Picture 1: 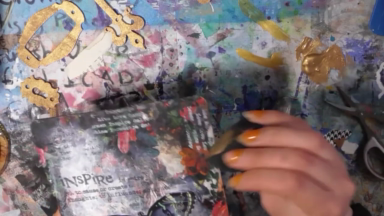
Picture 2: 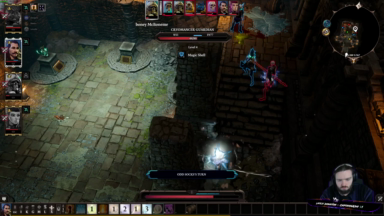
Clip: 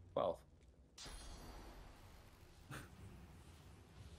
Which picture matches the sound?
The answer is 2